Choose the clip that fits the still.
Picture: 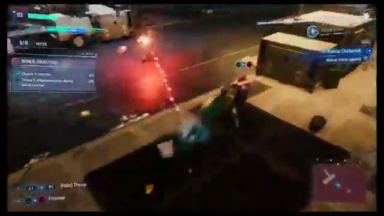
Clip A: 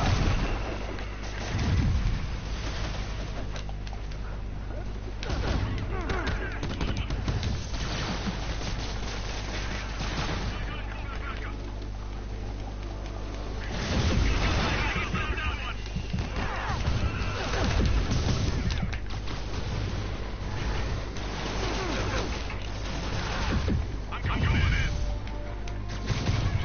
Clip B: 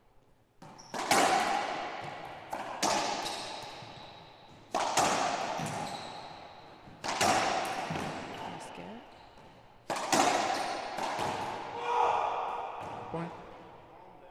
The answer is A